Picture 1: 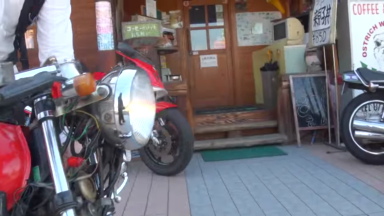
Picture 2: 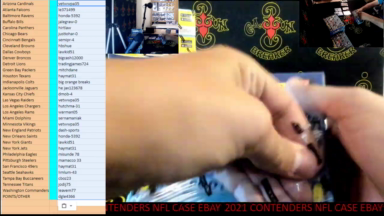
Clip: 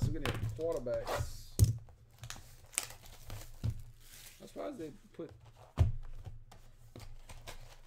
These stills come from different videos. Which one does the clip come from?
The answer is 2